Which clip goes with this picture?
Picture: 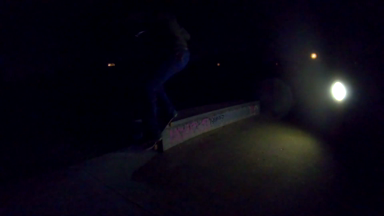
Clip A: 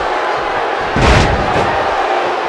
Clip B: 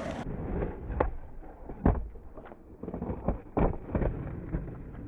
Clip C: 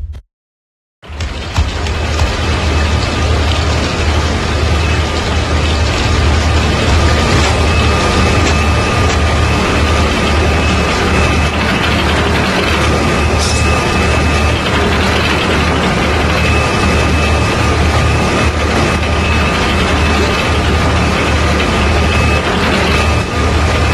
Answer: B